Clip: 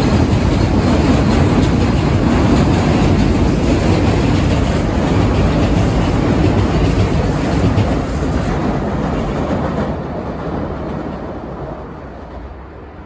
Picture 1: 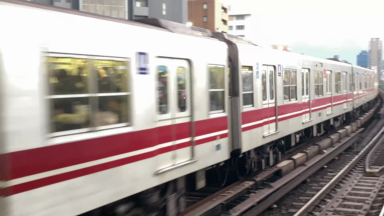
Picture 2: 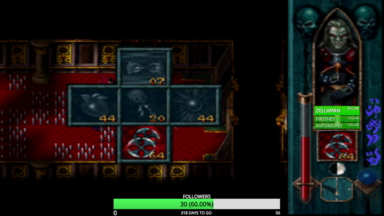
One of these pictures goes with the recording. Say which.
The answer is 1